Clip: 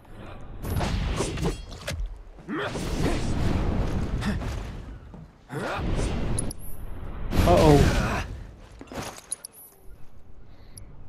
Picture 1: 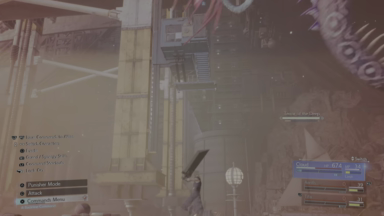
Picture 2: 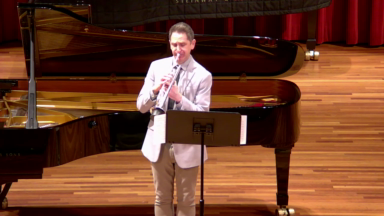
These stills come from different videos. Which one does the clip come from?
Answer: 1